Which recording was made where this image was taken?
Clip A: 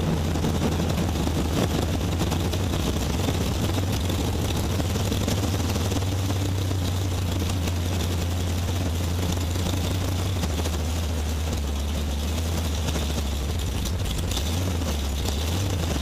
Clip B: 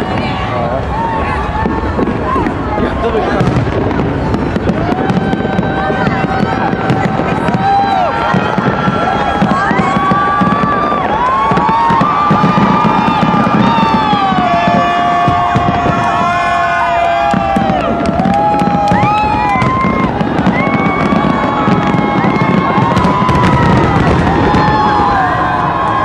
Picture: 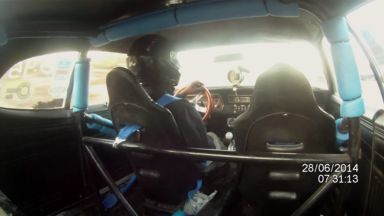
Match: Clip A